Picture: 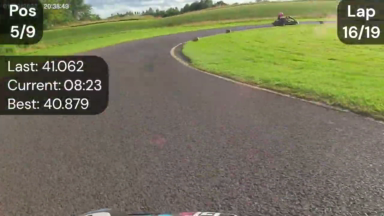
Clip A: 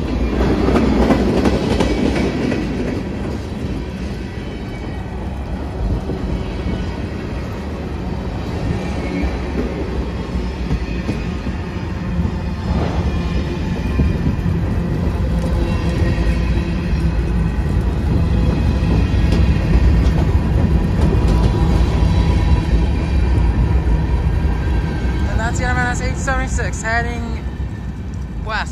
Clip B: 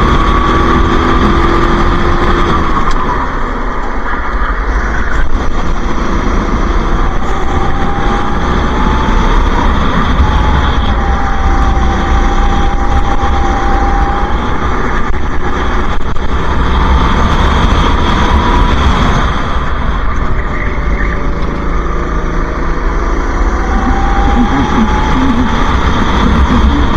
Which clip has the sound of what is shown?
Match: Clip B